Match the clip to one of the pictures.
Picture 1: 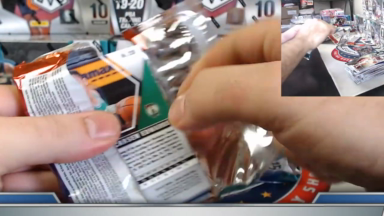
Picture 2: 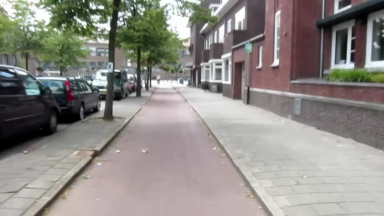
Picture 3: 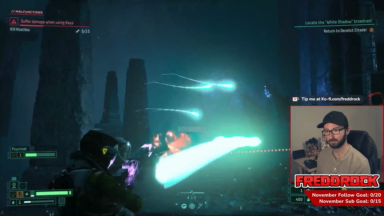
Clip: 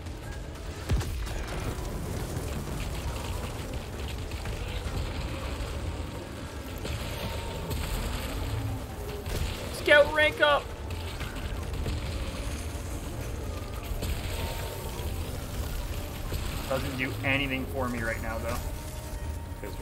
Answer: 3